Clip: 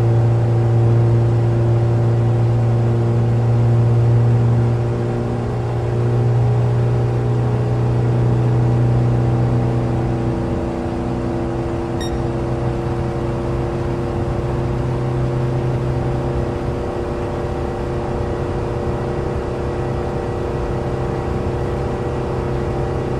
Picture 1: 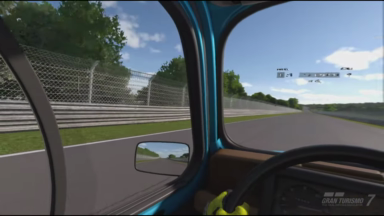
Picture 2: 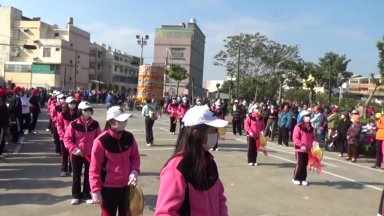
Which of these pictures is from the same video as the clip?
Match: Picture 1